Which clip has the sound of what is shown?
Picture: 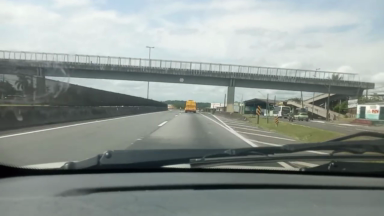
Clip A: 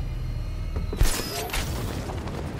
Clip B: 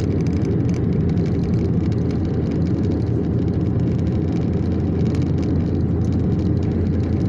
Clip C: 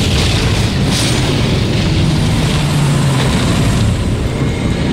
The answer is B